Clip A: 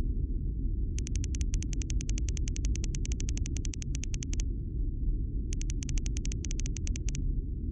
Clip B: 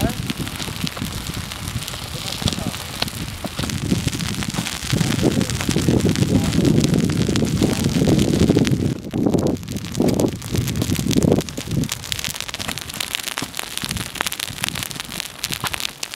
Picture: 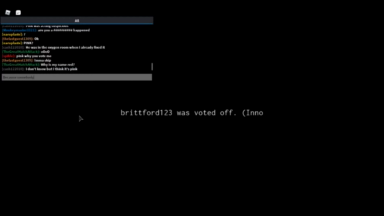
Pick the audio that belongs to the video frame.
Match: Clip A